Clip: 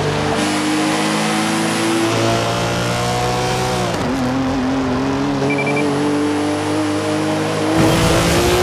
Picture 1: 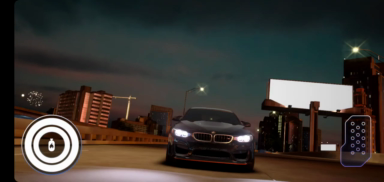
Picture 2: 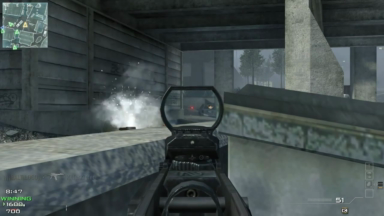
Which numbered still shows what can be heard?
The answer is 1